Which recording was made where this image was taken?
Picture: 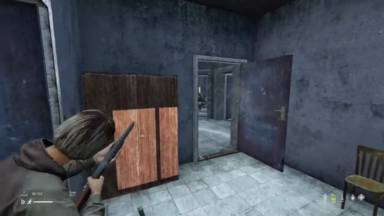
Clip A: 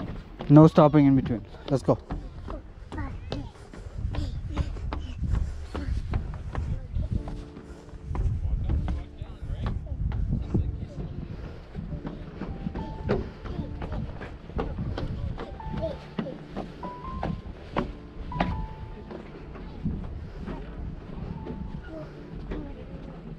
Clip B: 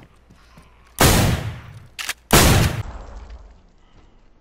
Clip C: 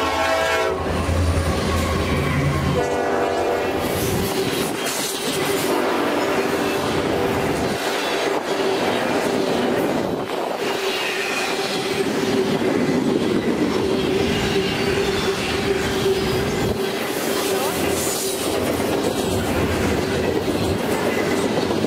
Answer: B